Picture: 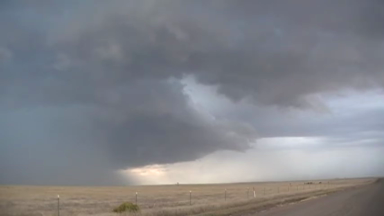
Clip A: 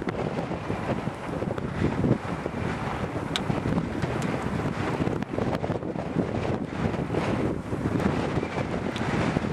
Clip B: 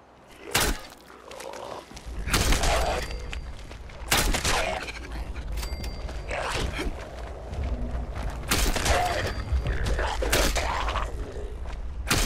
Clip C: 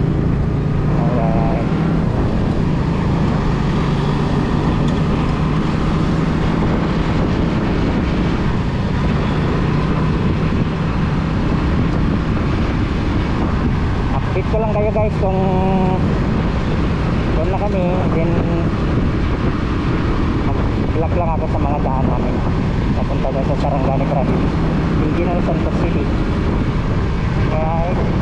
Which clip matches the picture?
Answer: A